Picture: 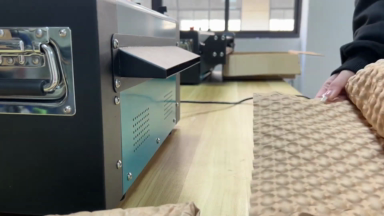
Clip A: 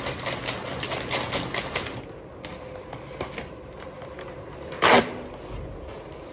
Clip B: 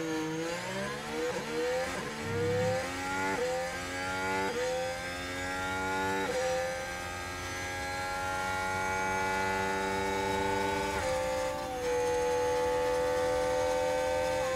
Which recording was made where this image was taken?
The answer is A